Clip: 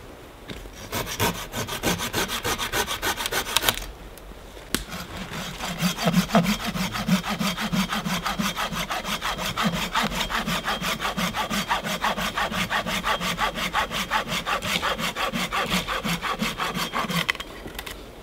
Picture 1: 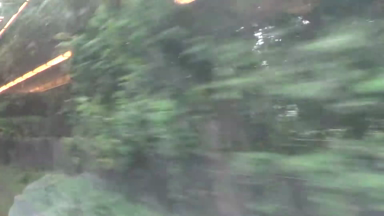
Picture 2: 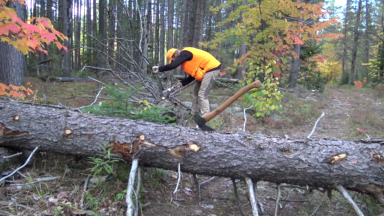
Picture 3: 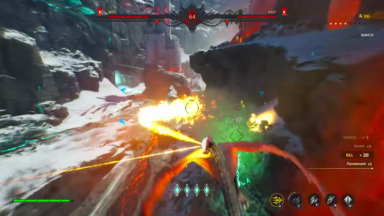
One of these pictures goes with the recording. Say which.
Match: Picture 2